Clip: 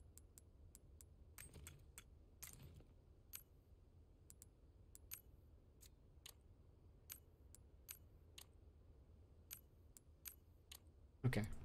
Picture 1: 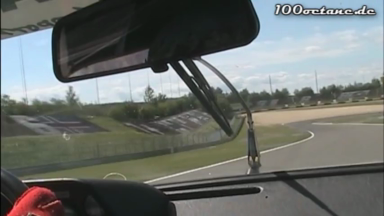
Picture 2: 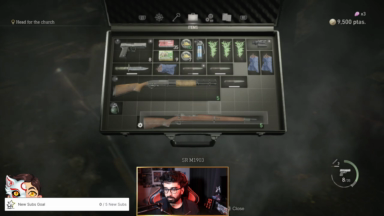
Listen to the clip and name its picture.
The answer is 2